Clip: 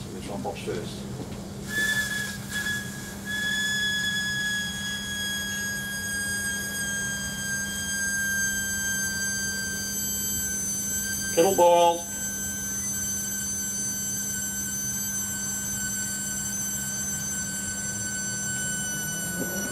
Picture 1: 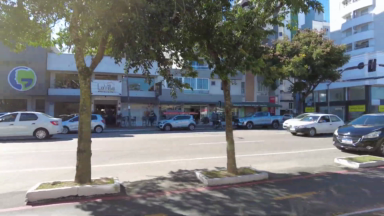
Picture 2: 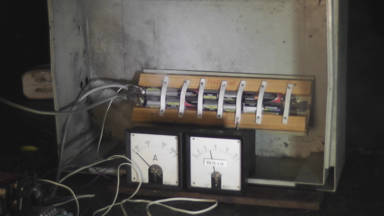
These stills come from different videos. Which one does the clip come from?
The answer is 2